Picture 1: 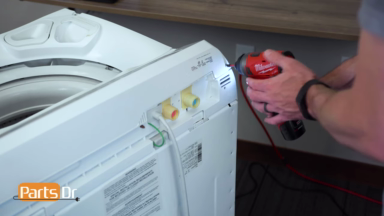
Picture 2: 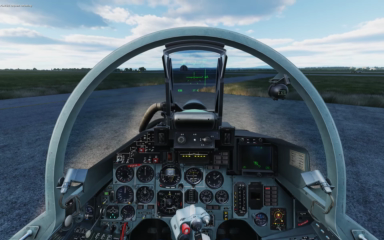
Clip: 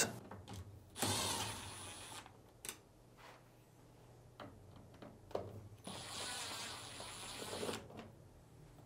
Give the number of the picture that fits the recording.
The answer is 1